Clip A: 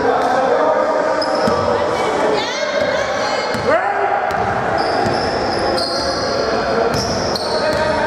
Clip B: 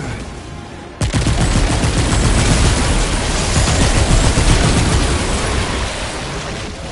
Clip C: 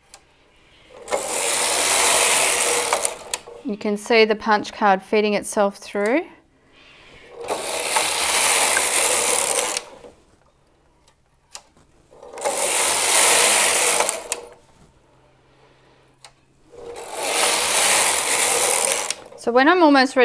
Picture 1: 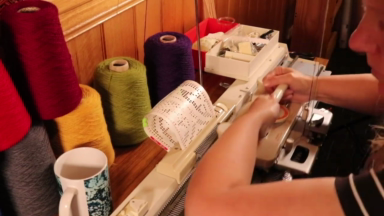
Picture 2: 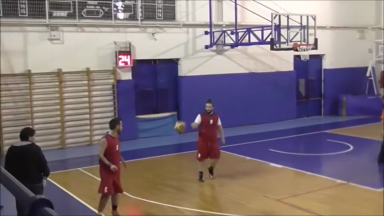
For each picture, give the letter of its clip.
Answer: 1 C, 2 A